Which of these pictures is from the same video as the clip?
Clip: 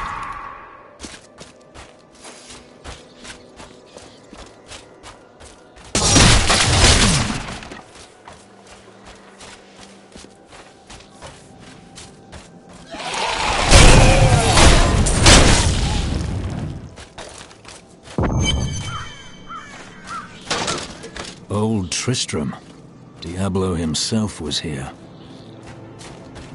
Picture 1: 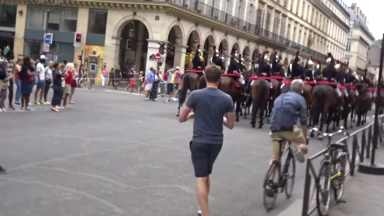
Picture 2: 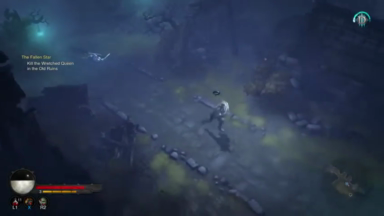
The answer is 2